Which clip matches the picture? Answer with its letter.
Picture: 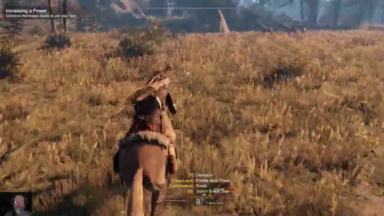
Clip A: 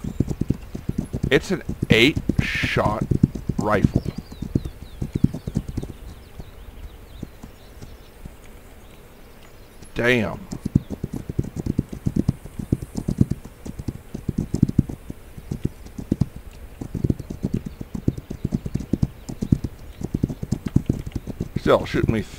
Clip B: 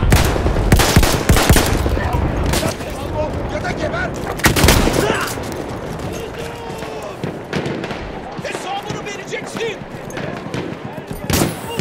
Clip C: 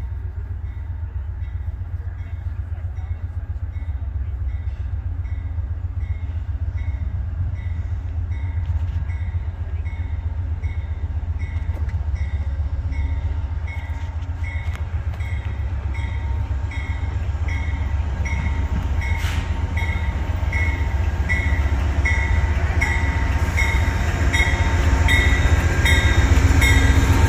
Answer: A